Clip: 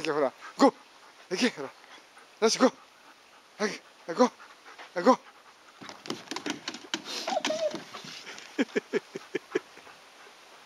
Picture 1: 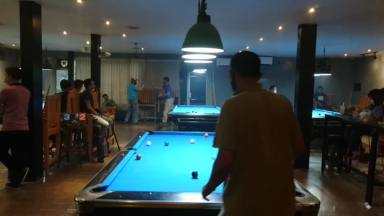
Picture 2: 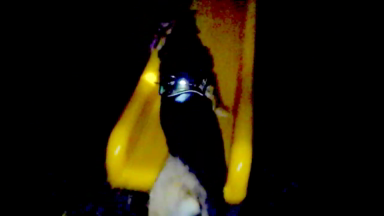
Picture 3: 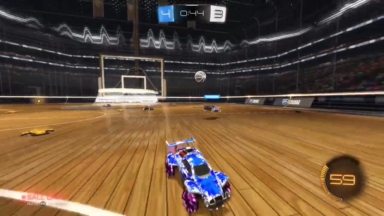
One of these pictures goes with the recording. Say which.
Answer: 2